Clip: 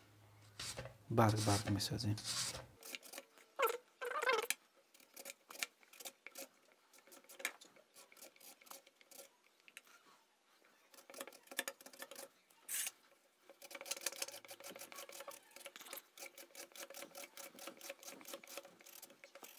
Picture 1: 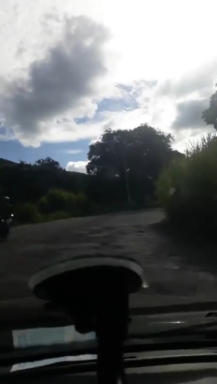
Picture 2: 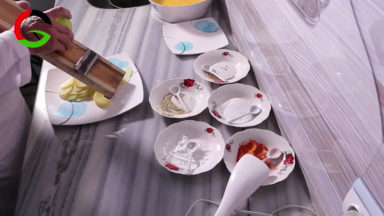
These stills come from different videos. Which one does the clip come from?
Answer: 2